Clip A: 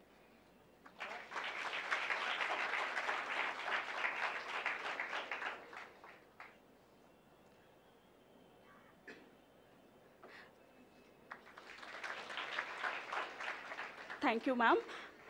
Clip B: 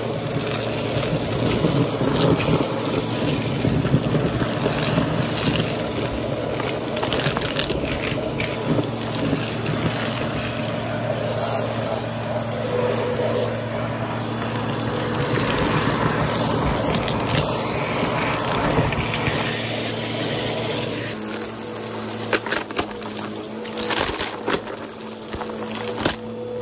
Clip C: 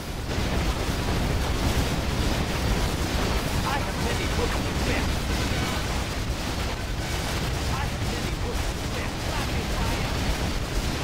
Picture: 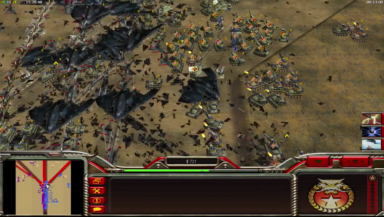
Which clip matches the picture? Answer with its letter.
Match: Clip C